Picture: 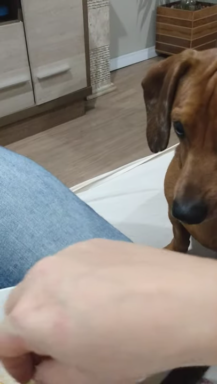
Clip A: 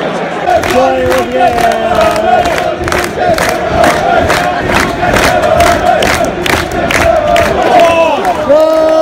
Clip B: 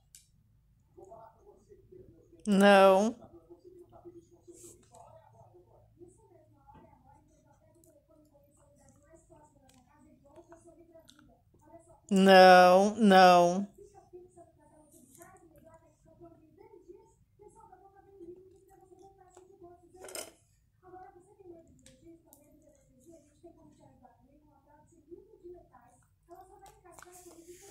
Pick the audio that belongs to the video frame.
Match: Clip B